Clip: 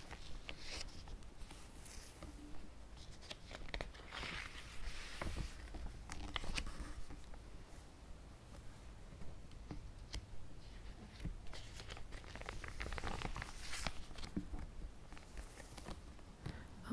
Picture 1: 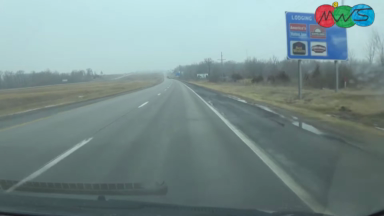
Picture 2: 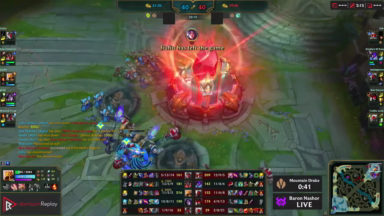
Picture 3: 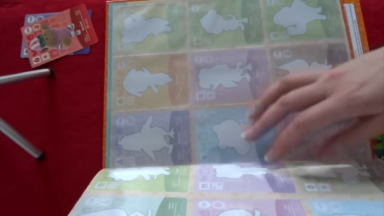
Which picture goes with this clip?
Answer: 3